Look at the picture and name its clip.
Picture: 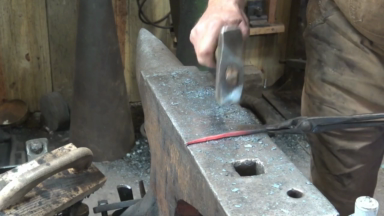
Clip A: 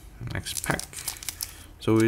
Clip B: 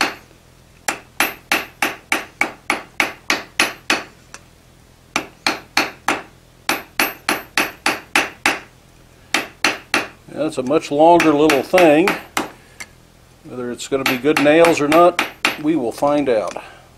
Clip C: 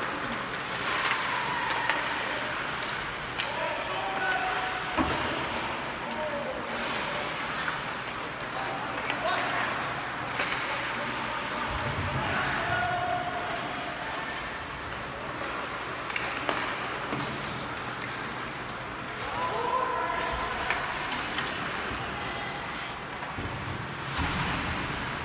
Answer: B